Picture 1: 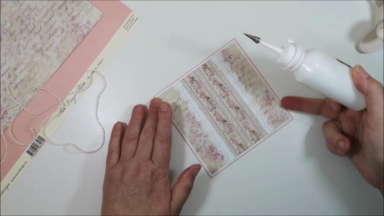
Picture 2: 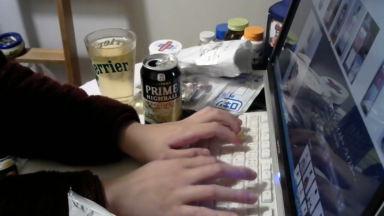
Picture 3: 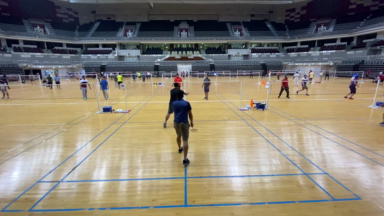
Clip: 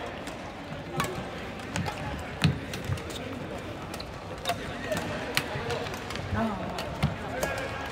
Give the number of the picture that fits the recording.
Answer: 3